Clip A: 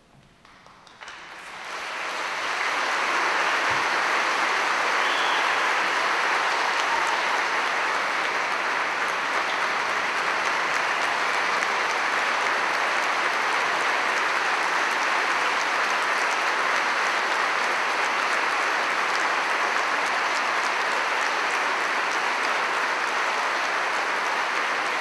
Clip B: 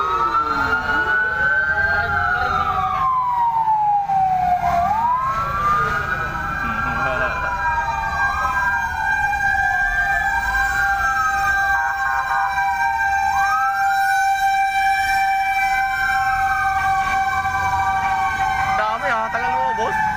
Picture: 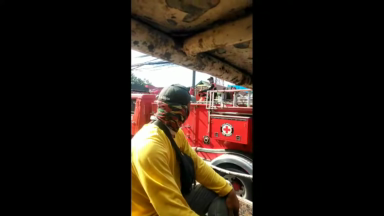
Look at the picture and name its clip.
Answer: B